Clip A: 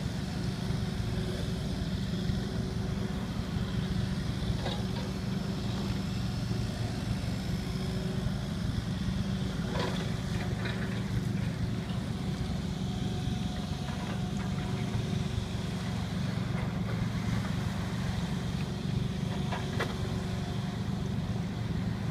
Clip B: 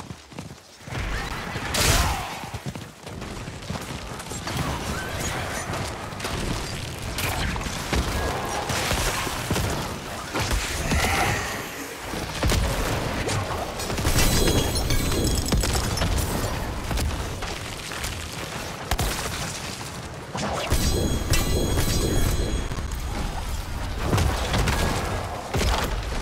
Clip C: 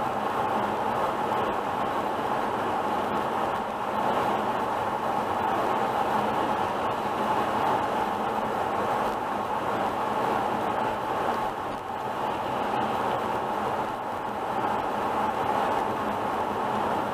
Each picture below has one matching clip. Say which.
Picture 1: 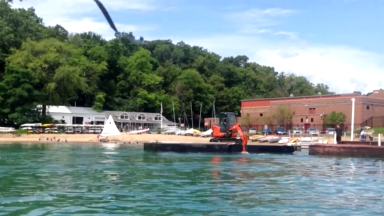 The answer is A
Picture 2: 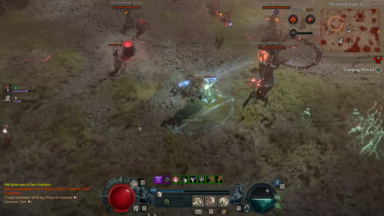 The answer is B